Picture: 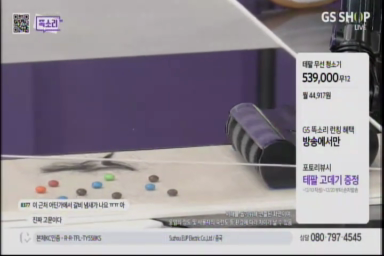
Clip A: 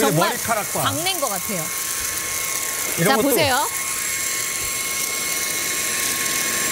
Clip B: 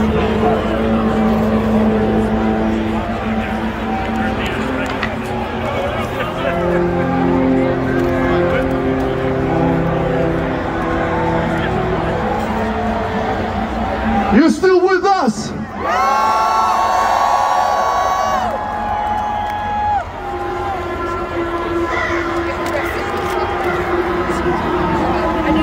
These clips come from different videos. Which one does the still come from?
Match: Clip A